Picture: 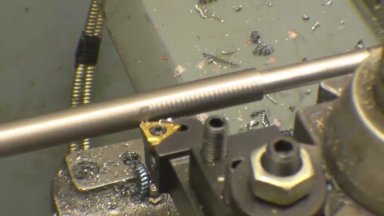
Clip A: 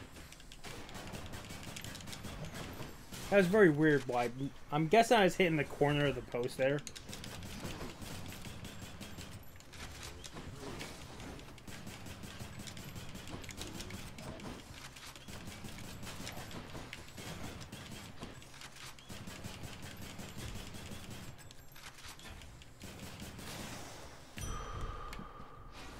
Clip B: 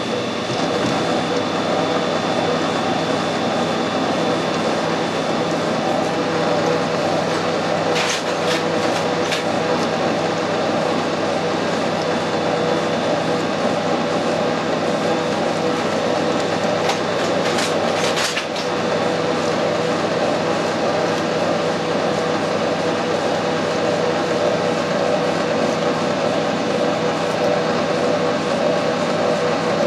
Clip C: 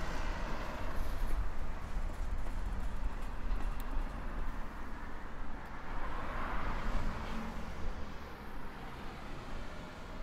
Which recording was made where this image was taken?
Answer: B